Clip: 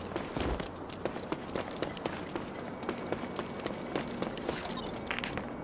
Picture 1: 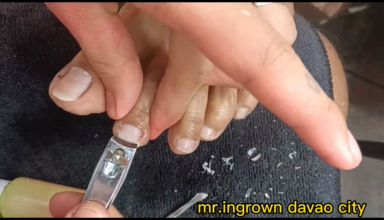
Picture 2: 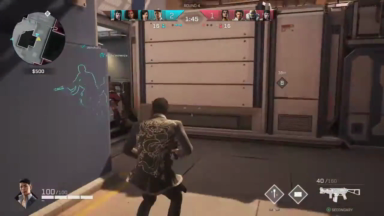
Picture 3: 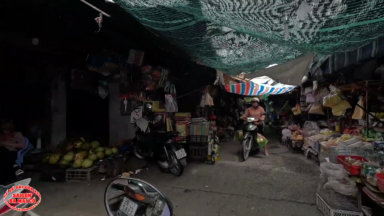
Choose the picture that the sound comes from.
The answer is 2